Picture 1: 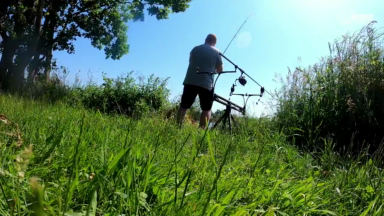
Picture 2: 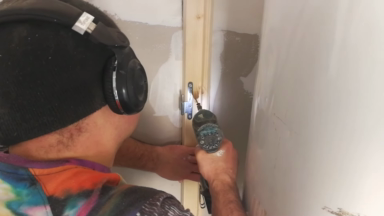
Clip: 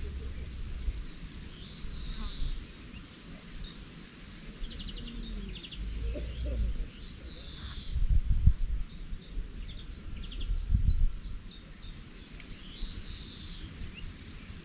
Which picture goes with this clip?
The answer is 1